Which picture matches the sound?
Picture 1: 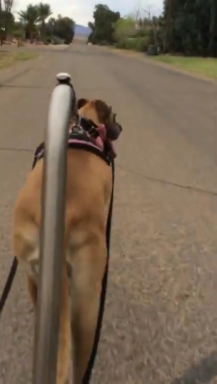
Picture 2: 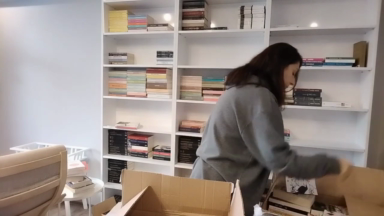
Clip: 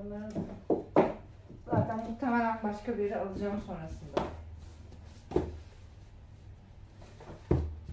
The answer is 2